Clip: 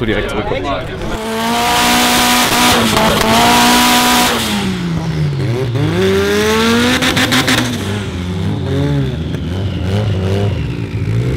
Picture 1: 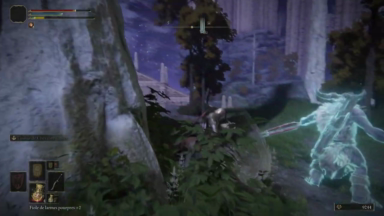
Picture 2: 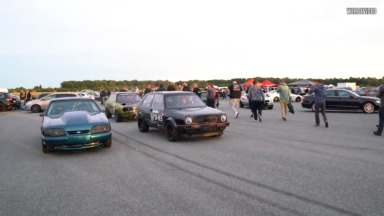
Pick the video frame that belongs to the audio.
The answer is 2